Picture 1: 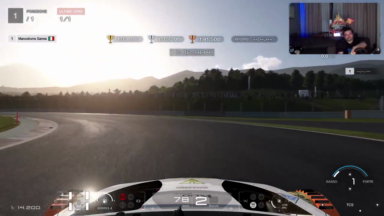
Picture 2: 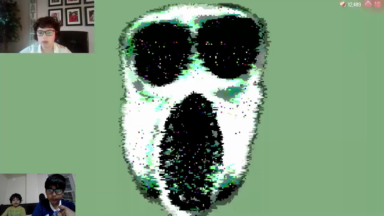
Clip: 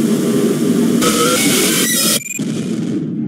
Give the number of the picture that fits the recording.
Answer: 2